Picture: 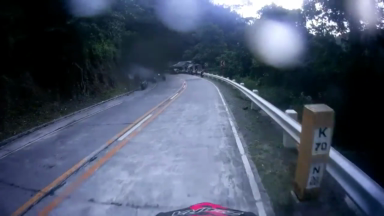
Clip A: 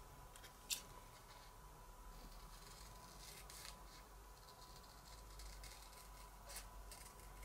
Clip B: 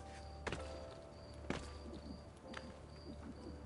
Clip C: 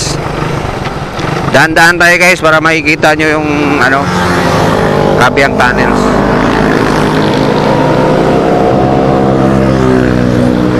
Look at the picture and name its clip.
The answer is C